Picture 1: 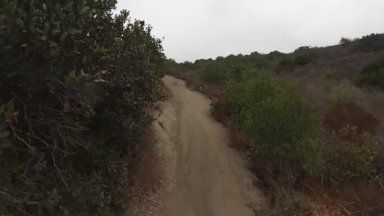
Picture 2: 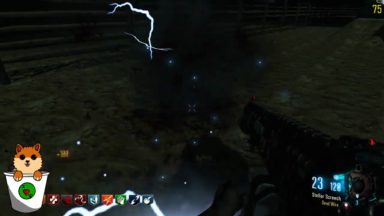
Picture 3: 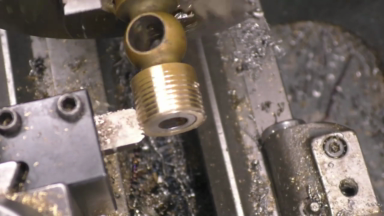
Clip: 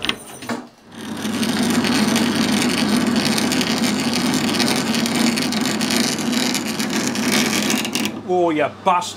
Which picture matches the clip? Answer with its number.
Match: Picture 3